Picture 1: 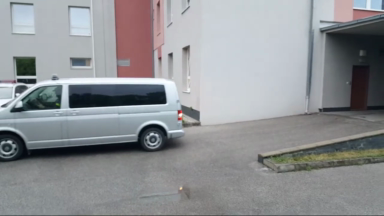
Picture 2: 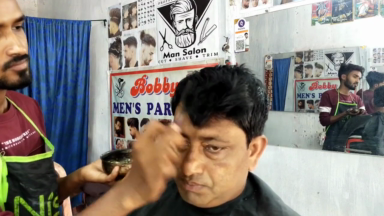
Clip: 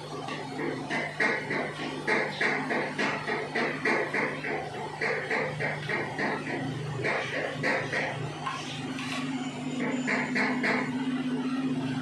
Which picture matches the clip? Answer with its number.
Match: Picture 2